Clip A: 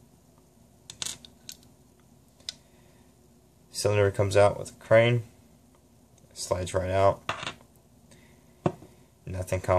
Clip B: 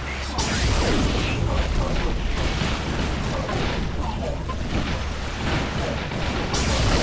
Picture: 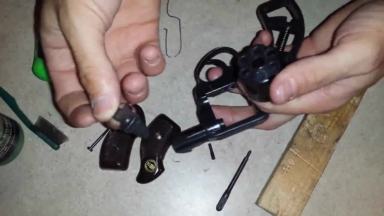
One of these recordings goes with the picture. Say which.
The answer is A